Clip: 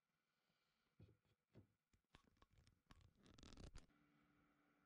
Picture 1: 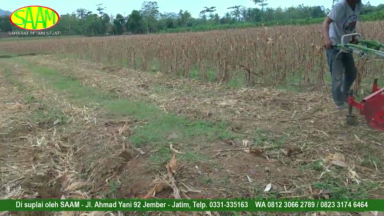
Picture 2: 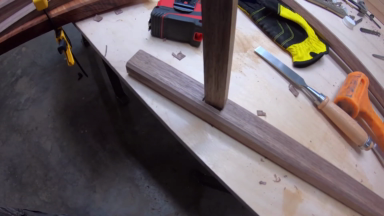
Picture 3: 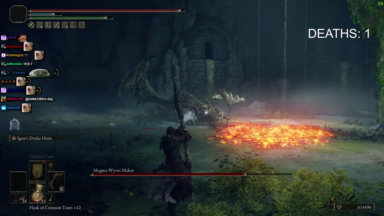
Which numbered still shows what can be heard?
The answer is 2